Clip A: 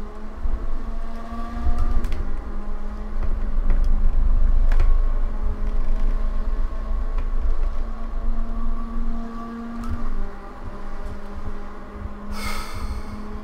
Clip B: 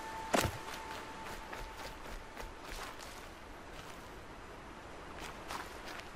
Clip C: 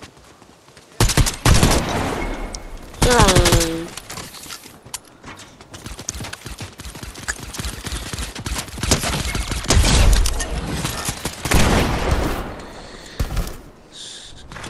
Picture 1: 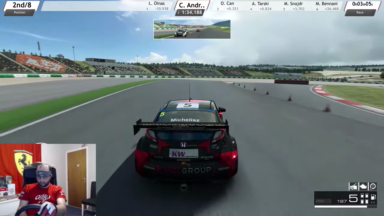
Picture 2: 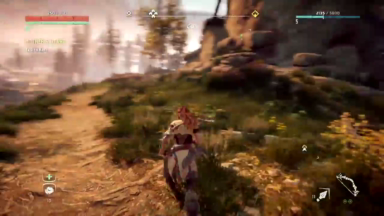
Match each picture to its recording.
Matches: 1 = A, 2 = B